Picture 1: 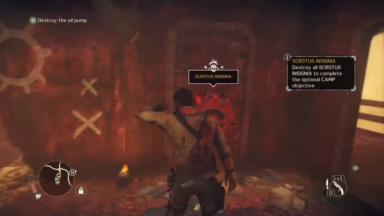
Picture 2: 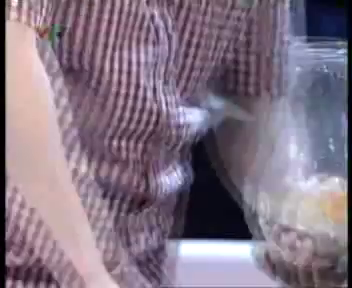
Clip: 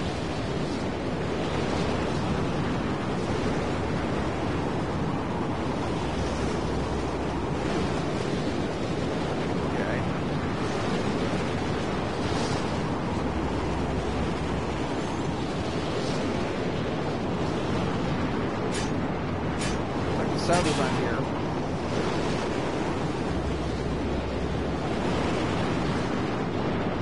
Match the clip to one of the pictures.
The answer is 1